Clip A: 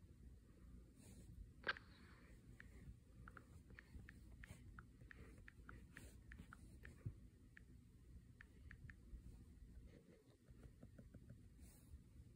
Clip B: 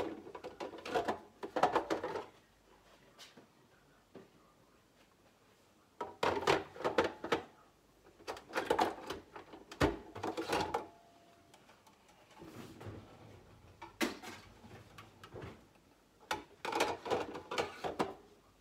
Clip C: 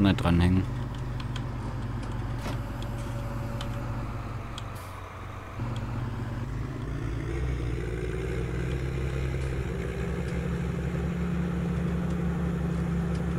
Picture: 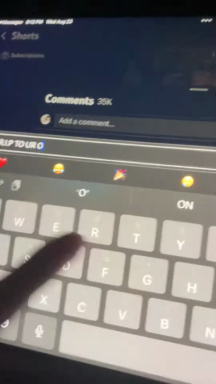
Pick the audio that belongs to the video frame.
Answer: A